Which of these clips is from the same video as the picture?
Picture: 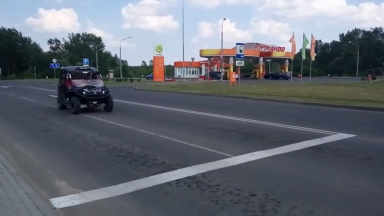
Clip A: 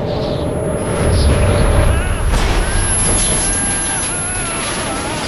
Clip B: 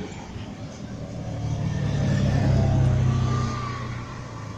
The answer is B